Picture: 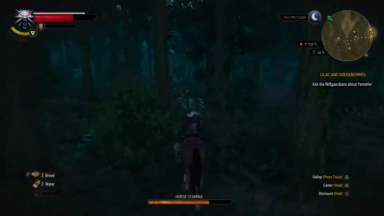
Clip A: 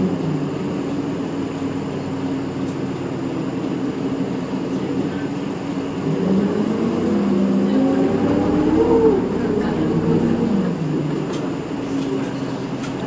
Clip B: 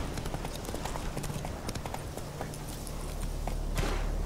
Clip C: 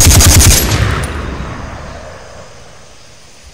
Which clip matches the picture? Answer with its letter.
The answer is B